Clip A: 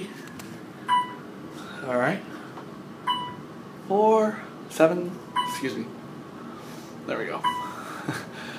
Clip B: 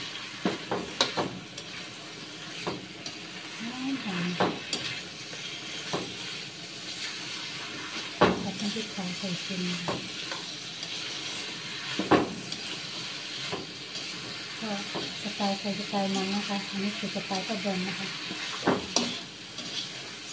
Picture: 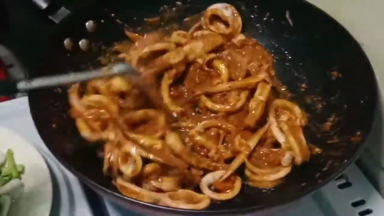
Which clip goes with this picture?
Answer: B